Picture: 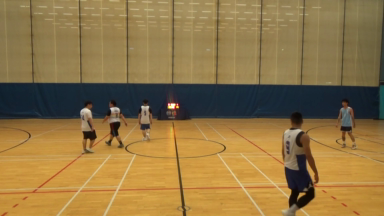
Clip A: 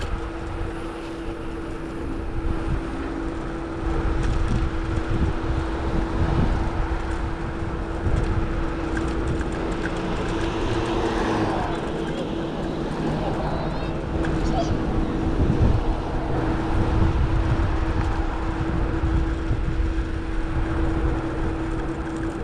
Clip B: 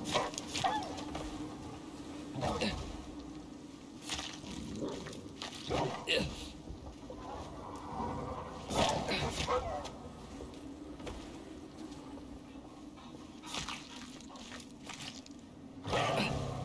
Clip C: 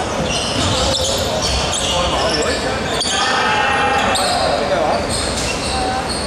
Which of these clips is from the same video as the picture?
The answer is C